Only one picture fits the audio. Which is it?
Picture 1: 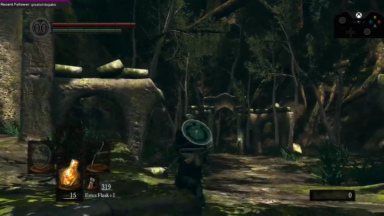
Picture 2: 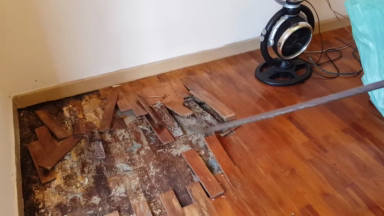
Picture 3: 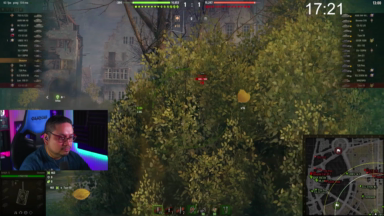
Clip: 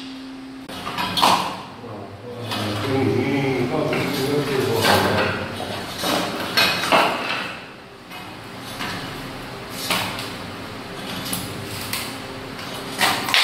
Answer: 2